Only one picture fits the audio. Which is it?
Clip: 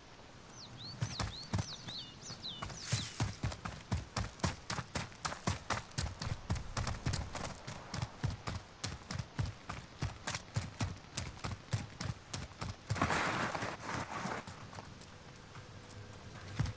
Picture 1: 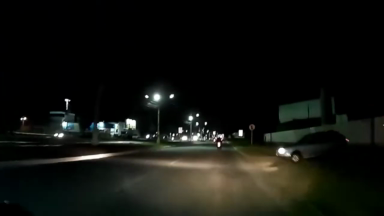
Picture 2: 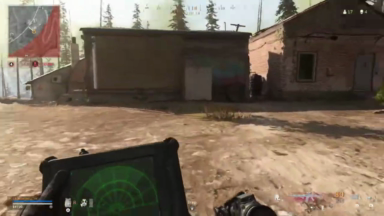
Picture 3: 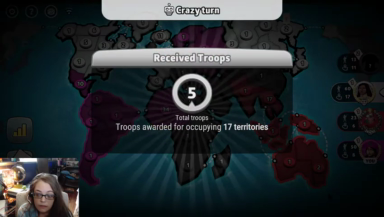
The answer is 2